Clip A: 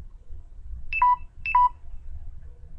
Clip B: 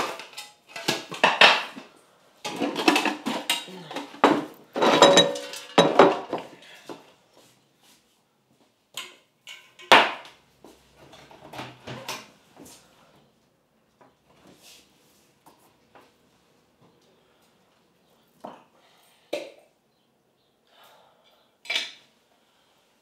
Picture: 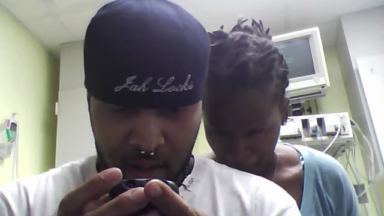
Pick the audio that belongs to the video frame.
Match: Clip A